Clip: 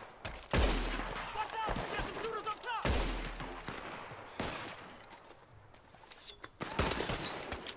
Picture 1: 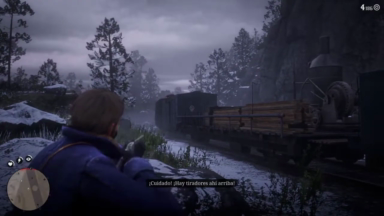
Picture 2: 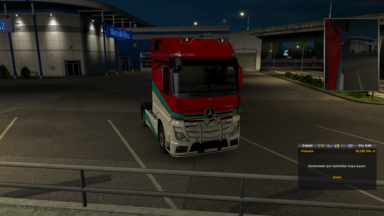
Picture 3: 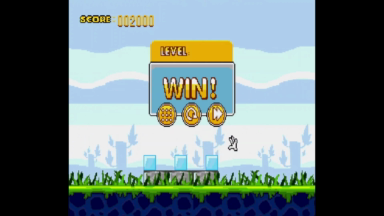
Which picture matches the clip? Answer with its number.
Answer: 1